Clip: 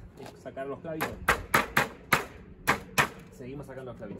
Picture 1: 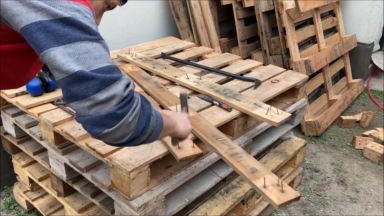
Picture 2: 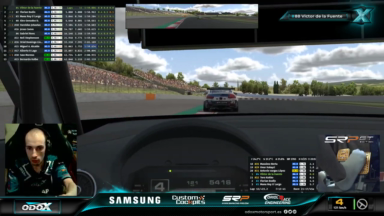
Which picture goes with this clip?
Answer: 1